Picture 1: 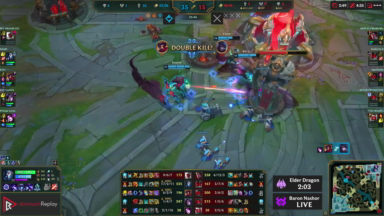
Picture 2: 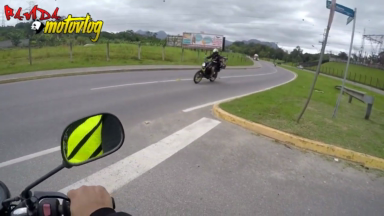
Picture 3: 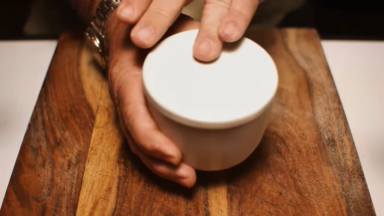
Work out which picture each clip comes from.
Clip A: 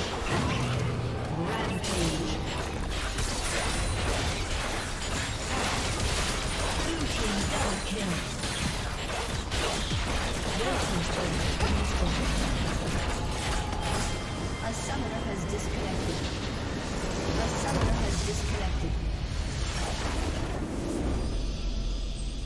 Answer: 1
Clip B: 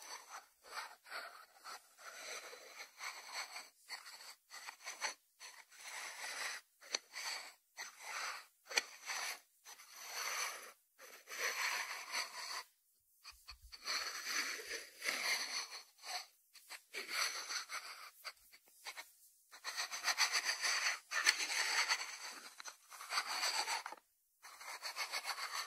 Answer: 3